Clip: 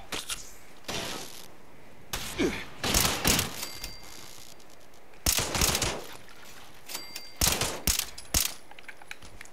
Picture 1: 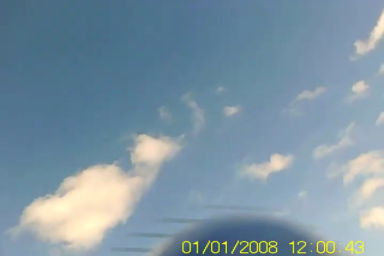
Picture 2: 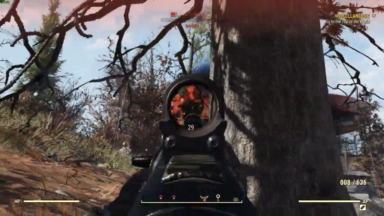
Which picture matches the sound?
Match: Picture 2